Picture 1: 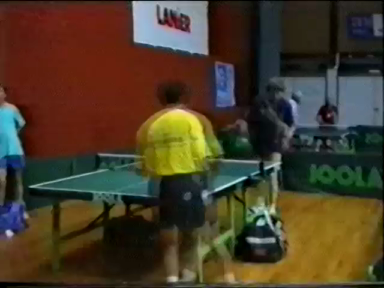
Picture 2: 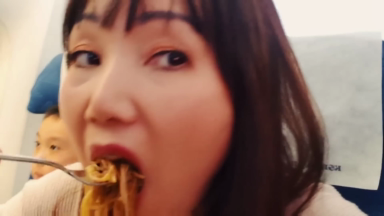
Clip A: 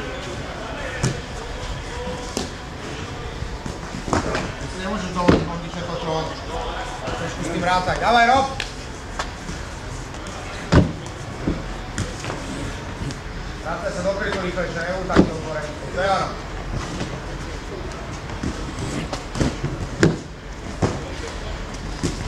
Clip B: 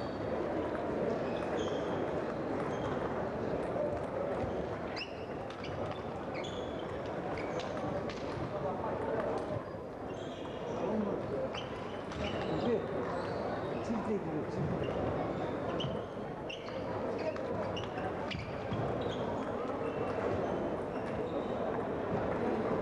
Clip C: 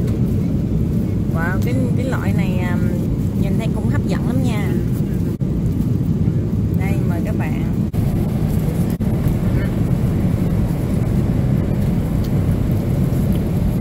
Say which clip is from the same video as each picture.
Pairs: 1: B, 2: C